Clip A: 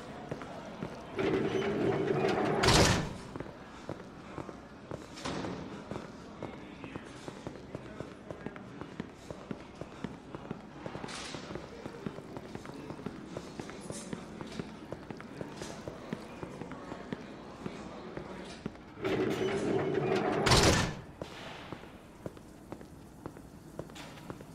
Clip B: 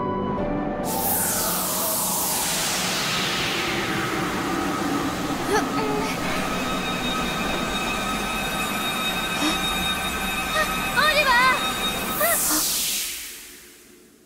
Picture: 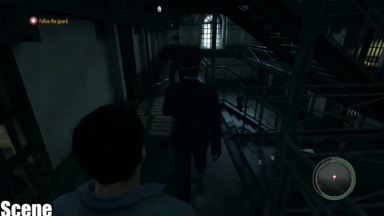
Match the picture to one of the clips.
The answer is A